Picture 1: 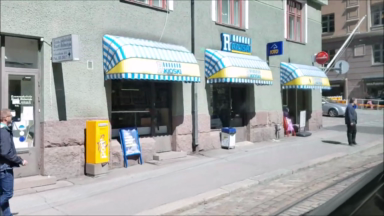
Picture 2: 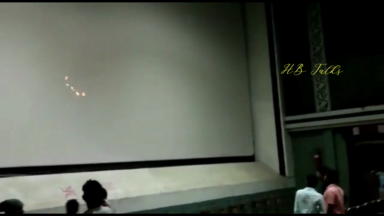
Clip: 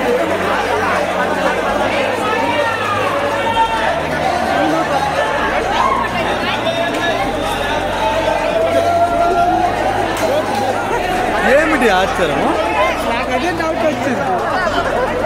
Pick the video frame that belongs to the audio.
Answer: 2